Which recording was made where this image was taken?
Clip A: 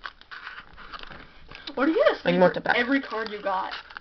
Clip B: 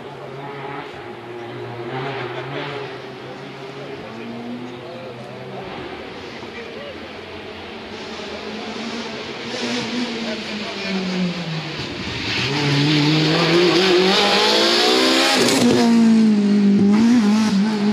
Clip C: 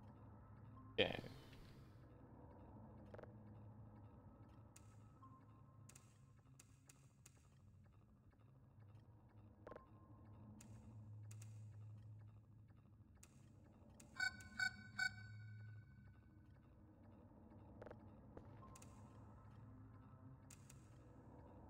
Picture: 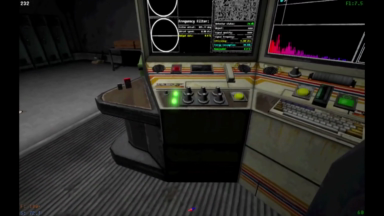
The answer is C